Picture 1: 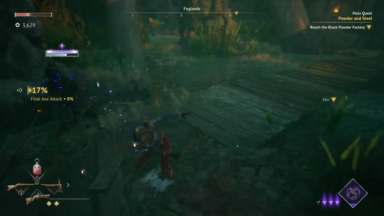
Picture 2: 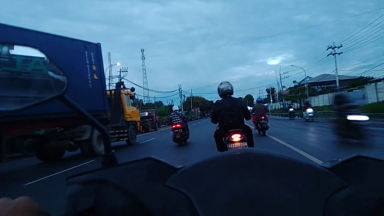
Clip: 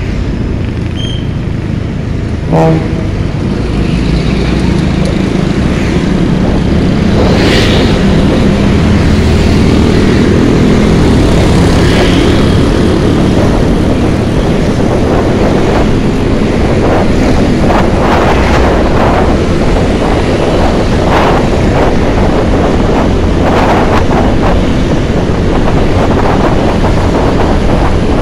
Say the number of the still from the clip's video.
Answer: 2